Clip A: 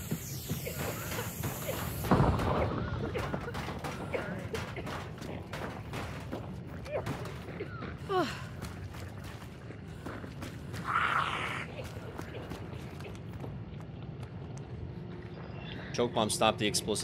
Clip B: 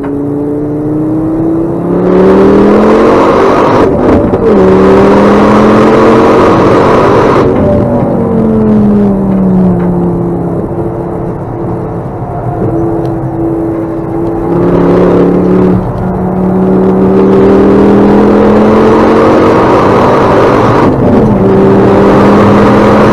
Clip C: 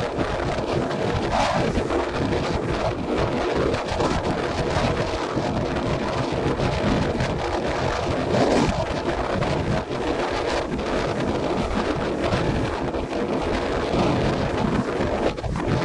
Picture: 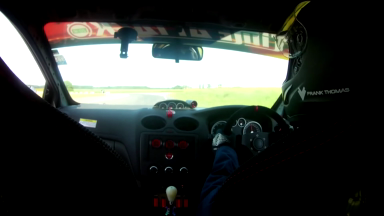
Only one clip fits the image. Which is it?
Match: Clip B